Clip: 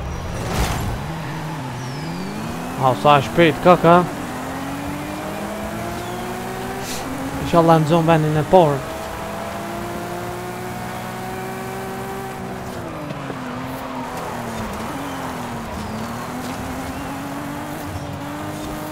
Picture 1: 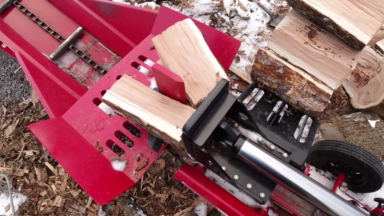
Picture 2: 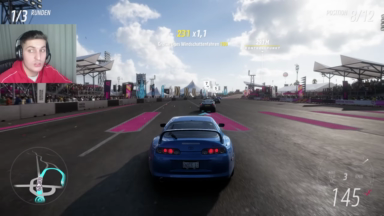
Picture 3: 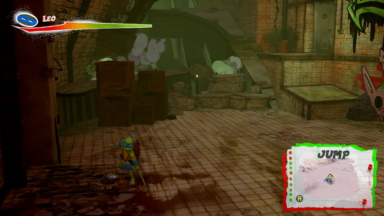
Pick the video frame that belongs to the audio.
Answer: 2